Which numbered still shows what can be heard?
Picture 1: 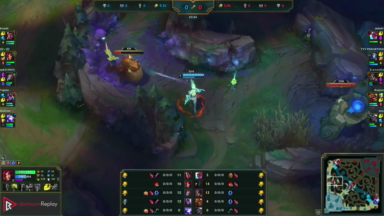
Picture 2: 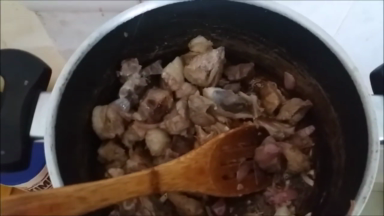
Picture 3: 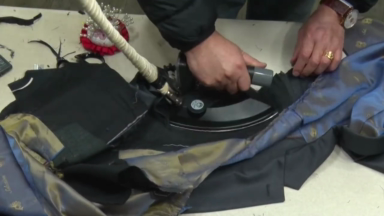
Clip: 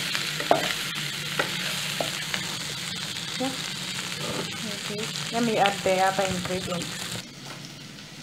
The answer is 2